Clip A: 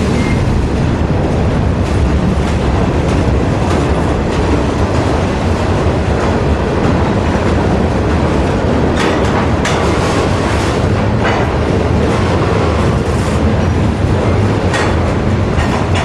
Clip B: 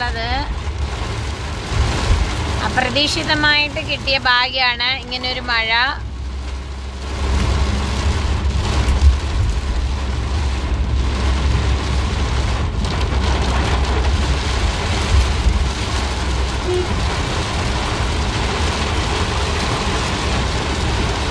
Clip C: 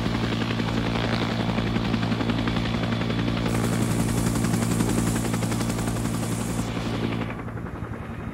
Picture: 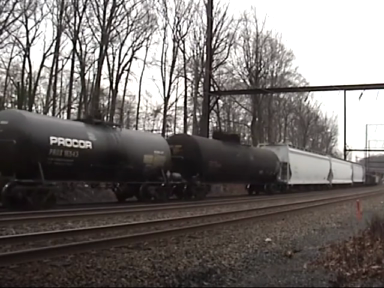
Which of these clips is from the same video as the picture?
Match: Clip A